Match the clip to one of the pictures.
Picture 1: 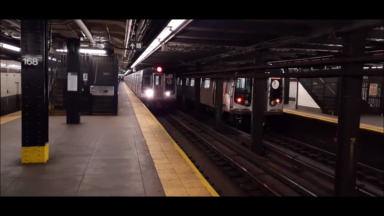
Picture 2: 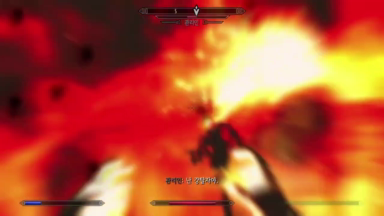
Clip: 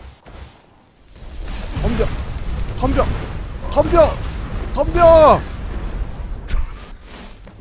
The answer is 2